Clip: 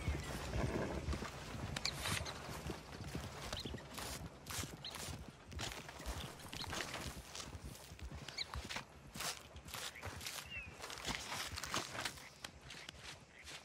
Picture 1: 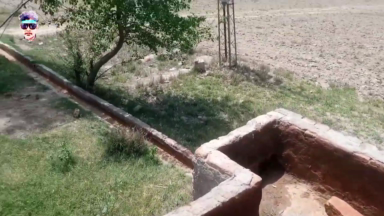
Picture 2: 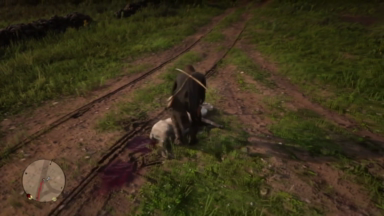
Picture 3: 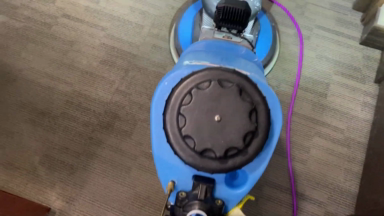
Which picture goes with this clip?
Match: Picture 2